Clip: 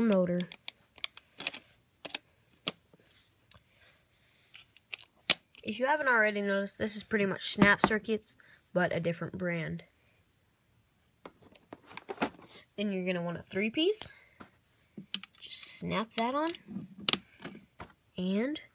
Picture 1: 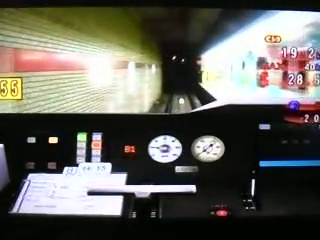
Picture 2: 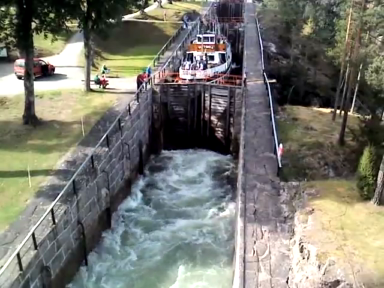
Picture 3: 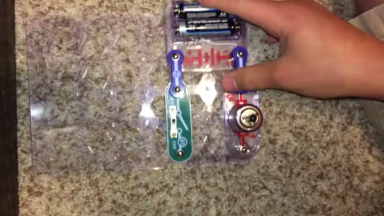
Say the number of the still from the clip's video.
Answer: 3